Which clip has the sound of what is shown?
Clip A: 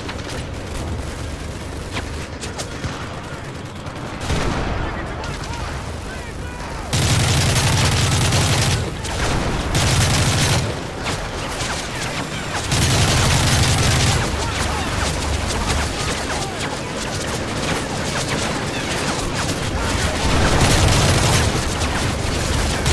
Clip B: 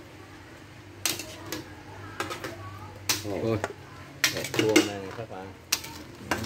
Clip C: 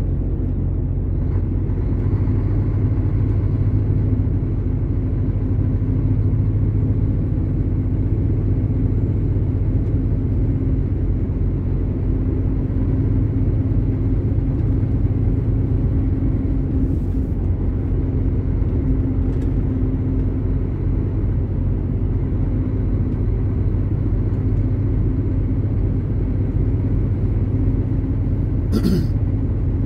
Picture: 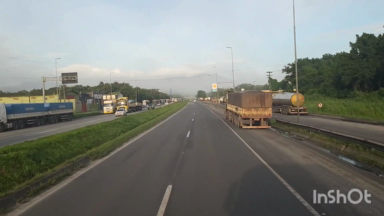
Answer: C